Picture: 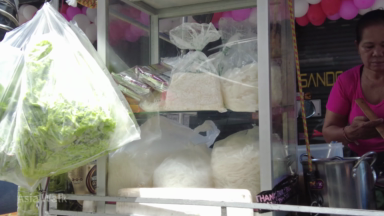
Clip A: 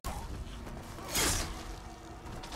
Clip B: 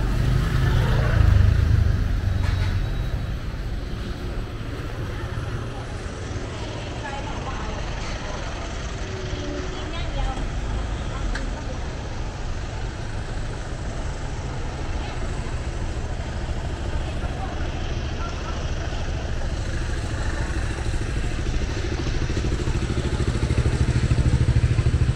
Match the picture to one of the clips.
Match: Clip B